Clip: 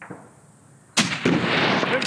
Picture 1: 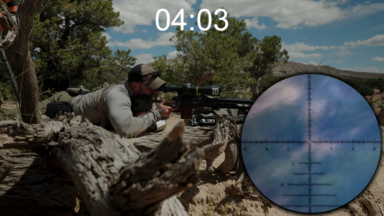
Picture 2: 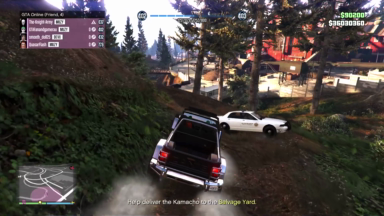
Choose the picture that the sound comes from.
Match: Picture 1